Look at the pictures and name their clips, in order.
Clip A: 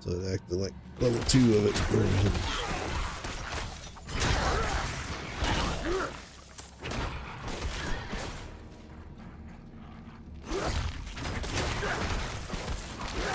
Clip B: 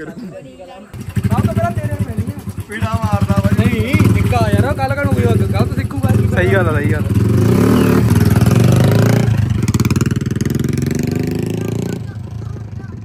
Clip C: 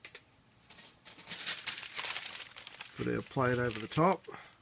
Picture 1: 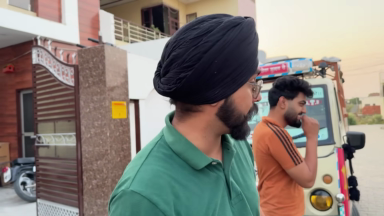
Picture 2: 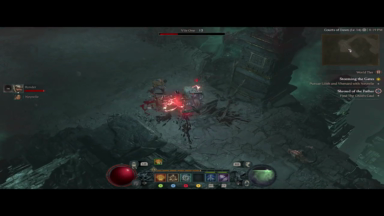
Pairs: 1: B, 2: A